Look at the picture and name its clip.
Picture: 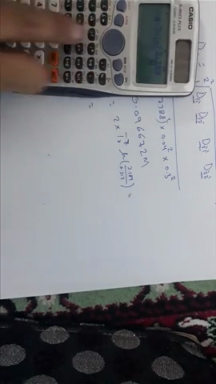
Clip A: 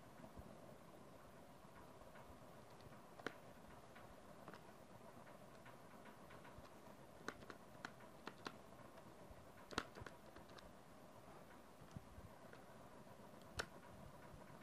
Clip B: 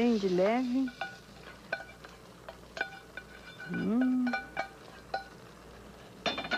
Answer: A